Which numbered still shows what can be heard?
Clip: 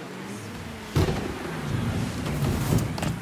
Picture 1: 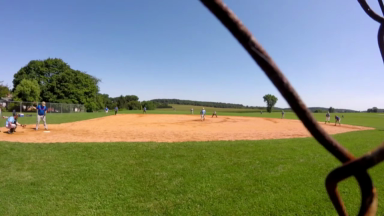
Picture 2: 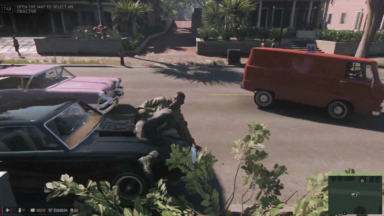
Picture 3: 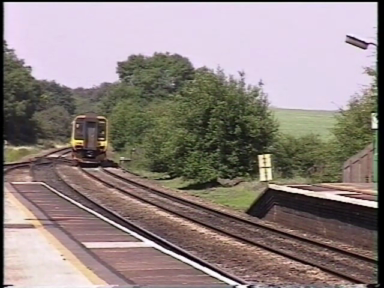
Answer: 2